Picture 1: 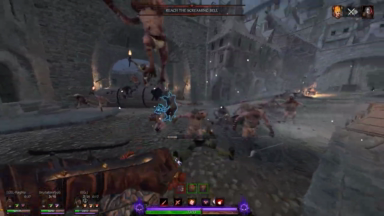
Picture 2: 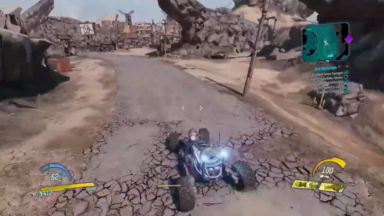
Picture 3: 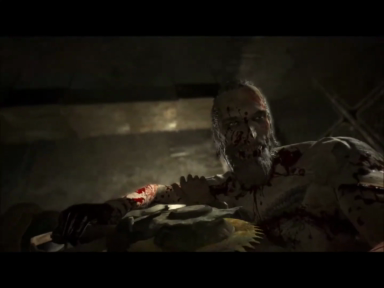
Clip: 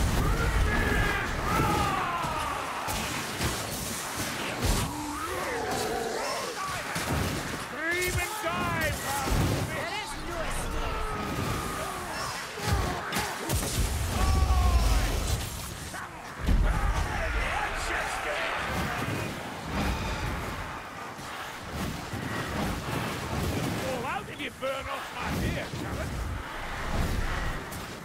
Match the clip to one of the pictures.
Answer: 1